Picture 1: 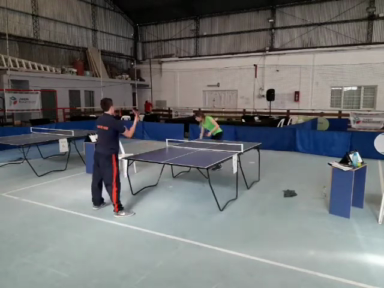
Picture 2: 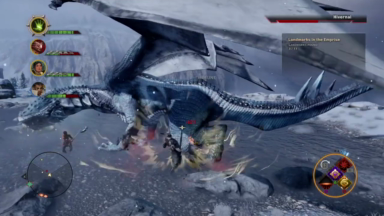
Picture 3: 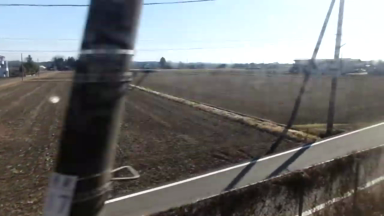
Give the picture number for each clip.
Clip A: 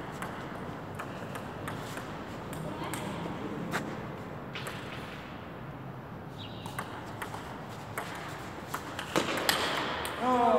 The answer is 1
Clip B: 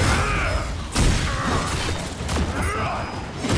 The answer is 2